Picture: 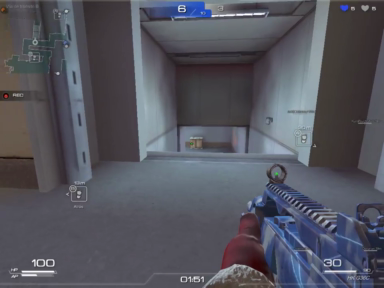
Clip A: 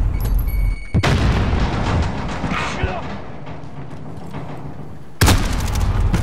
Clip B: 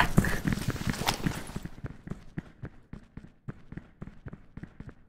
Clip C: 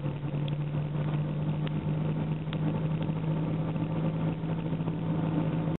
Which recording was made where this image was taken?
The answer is B